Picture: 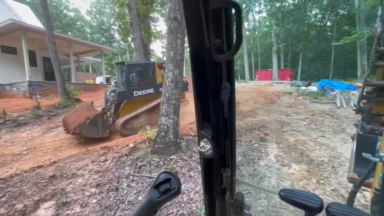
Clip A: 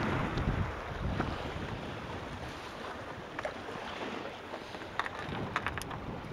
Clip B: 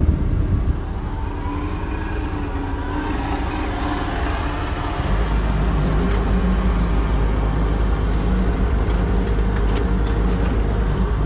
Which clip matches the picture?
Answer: B